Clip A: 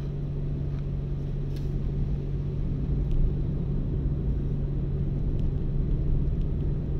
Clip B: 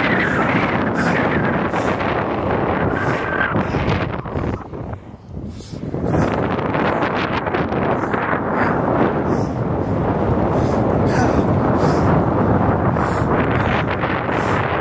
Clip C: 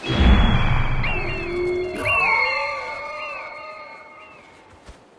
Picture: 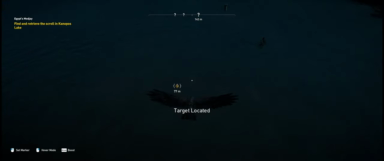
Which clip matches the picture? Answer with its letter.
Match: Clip C